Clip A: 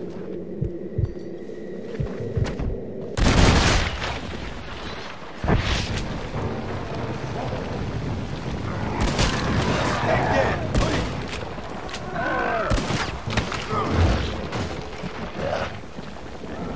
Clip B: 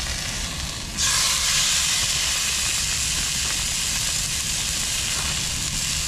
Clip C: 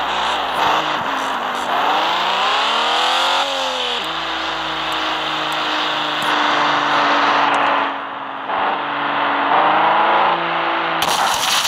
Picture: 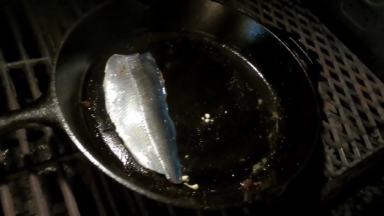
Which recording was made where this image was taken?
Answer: B